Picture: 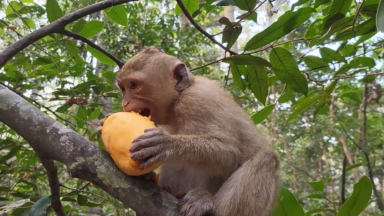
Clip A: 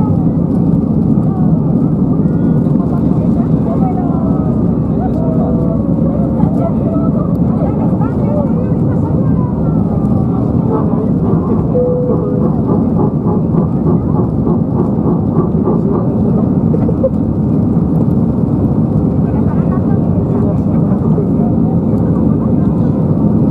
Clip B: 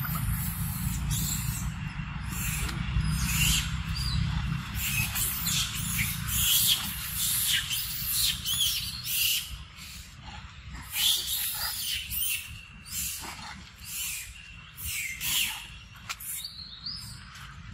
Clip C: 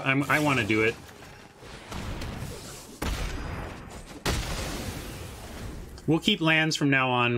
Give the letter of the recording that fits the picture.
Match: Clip B